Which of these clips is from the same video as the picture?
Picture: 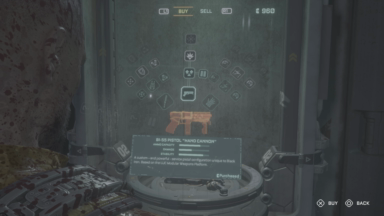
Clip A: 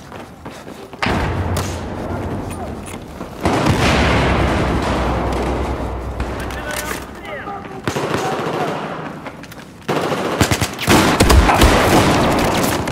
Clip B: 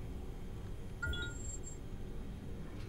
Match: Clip B